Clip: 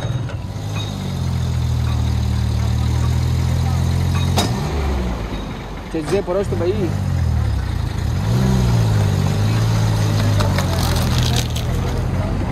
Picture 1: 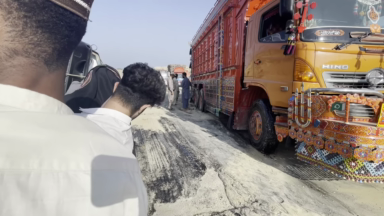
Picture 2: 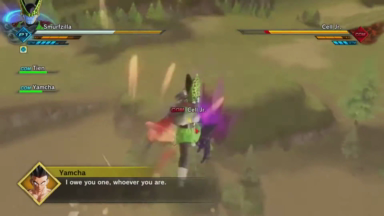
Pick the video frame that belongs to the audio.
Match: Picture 1